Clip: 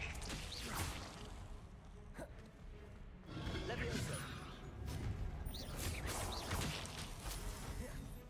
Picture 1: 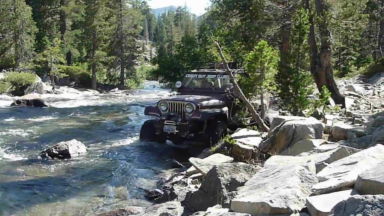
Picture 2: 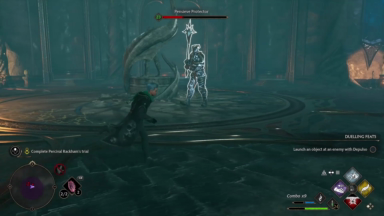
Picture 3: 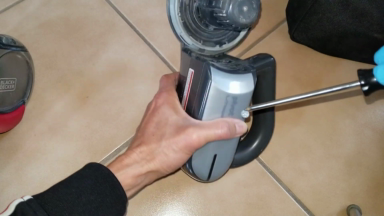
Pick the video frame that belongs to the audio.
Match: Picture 2